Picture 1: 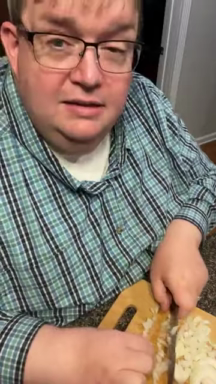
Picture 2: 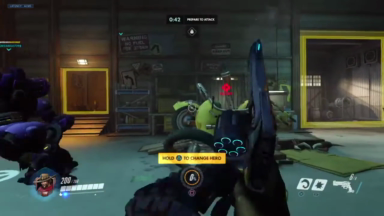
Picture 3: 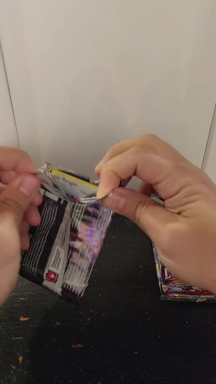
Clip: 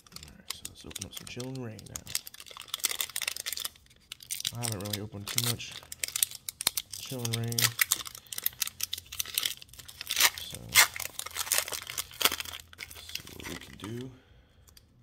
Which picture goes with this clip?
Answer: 3